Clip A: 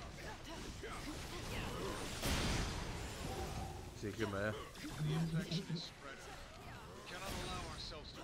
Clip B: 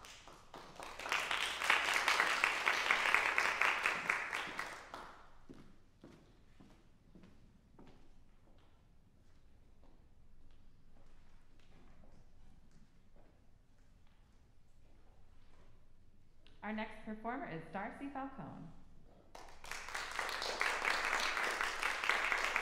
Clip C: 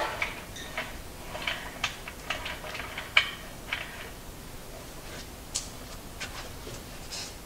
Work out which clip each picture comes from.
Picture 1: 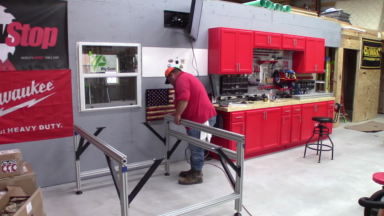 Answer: C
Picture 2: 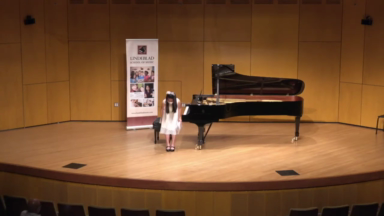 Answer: B